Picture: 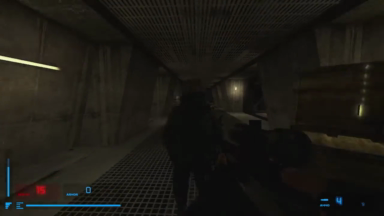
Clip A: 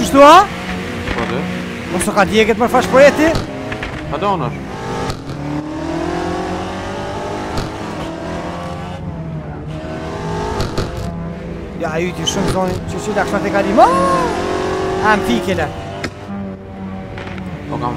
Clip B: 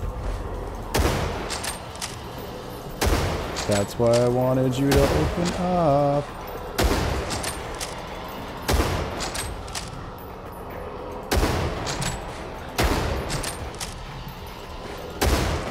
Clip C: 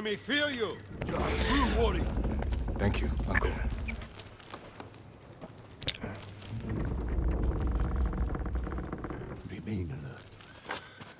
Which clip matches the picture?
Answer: B